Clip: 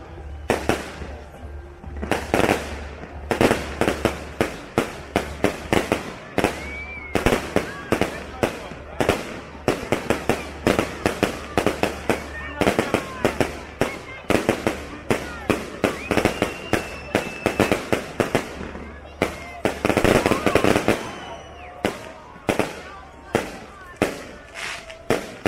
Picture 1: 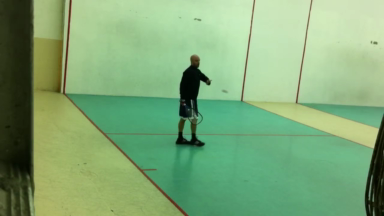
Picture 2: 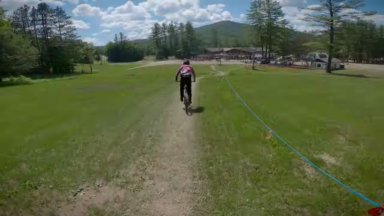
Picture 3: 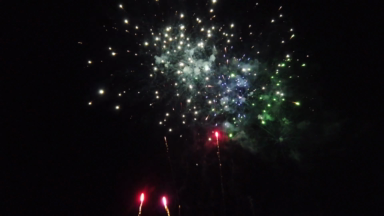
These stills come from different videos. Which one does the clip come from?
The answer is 3